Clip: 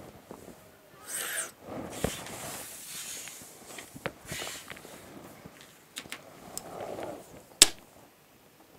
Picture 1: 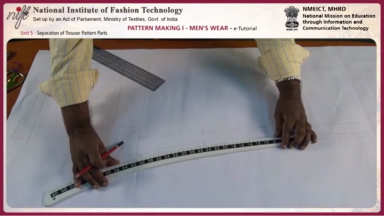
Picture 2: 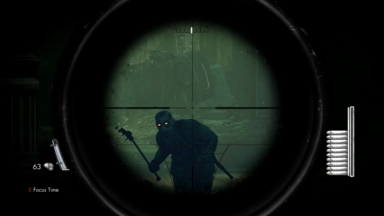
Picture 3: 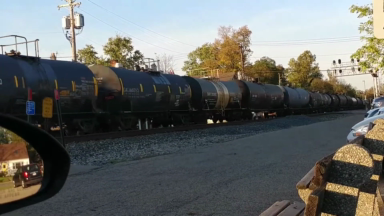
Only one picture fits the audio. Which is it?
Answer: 1